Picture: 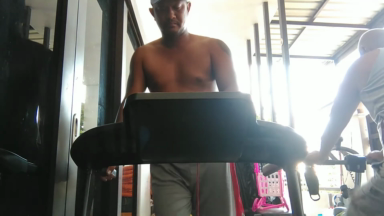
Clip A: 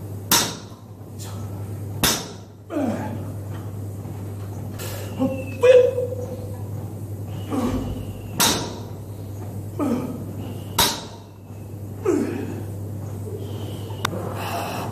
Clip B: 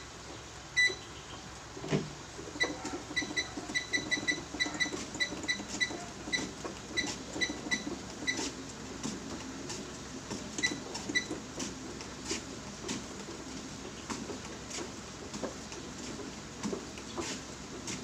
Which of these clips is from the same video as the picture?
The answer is B